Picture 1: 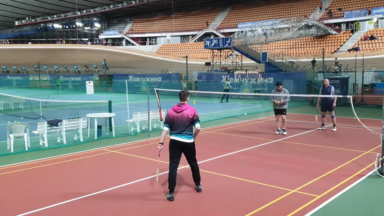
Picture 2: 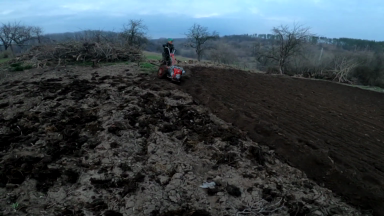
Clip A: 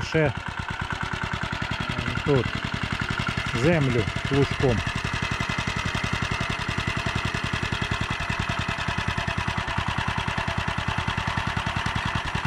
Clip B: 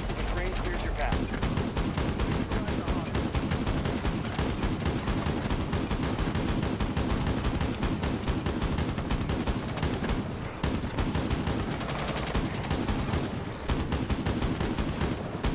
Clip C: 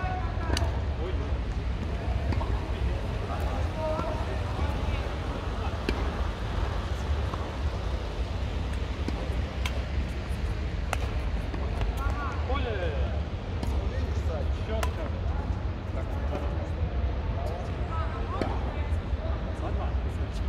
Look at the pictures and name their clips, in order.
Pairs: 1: C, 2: A